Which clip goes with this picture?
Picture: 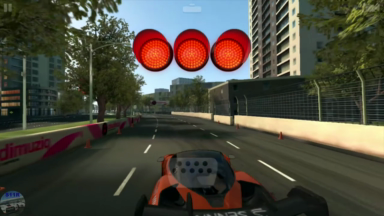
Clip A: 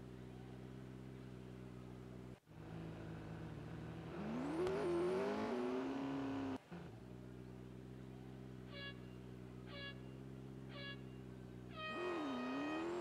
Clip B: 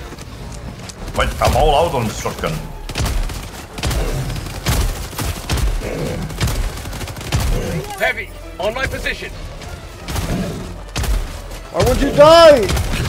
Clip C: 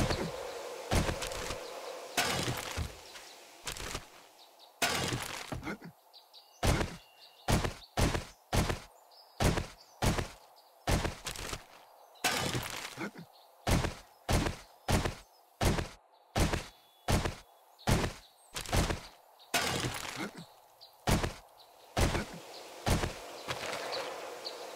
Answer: A